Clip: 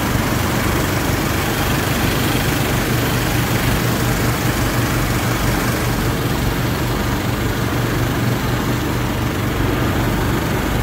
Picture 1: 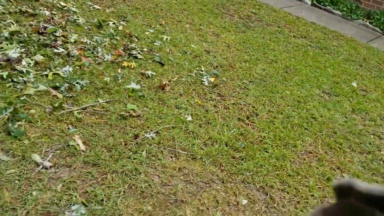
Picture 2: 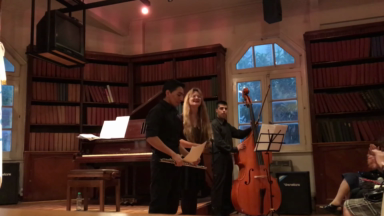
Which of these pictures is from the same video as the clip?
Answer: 1